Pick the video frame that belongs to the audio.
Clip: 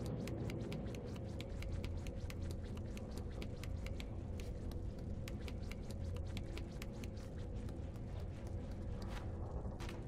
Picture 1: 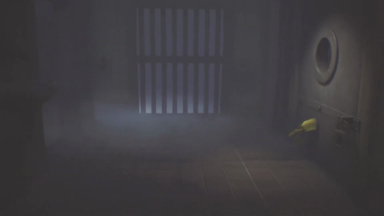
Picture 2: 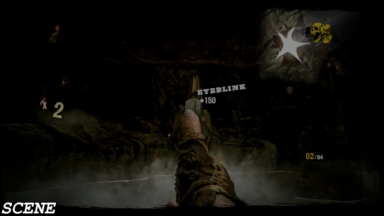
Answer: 1